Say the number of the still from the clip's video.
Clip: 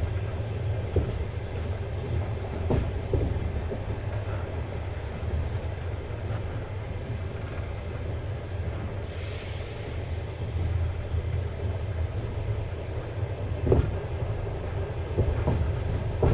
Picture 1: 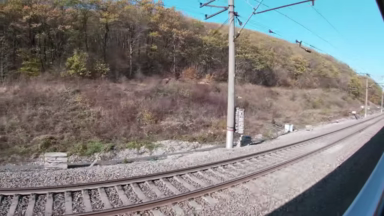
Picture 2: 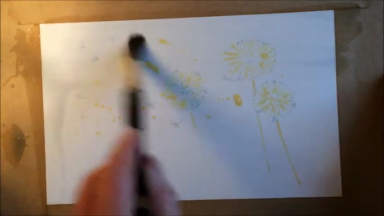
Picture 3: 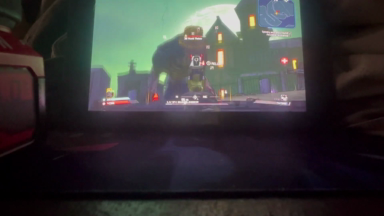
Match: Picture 1